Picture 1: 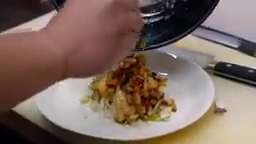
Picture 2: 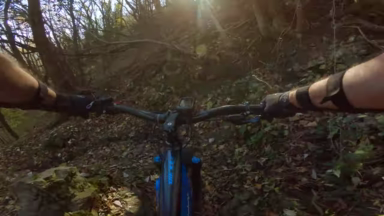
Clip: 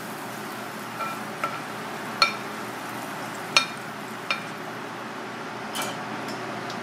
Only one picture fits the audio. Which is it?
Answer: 1